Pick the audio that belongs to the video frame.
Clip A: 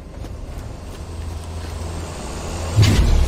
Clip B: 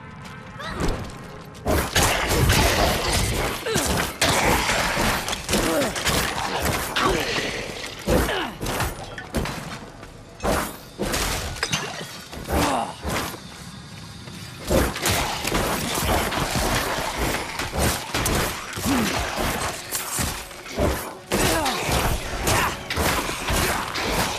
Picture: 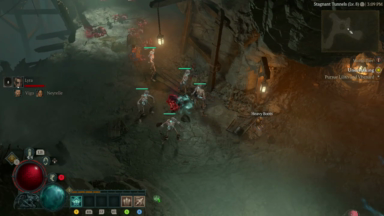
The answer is B